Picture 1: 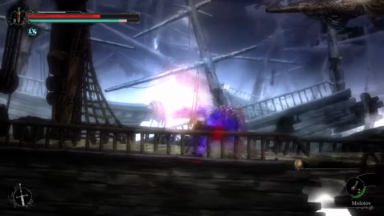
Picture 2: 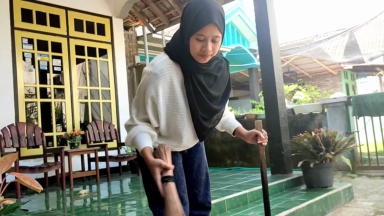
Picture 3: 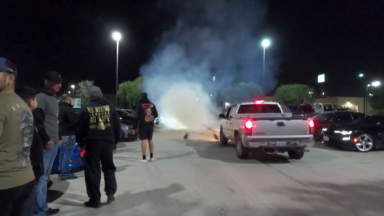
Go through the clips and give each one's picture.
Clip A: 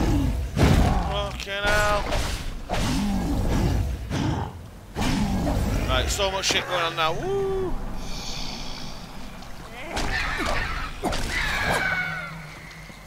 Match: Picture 1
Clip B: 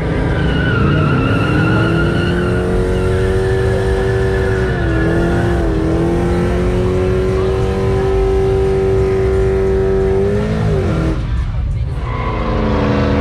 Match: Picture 3